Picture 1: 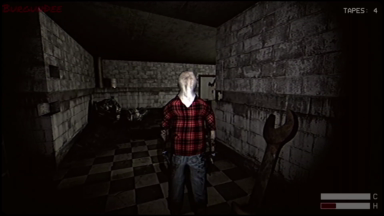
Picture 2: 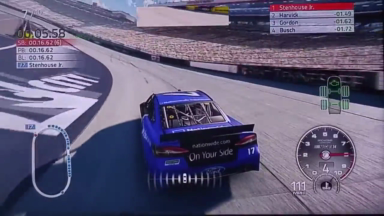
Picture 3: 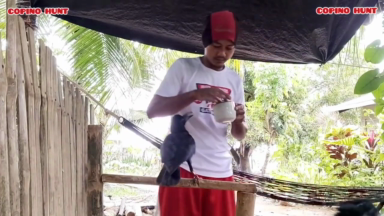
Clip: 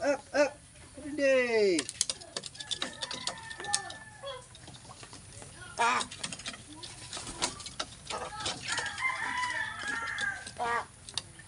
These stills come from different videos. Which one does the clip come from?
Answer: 3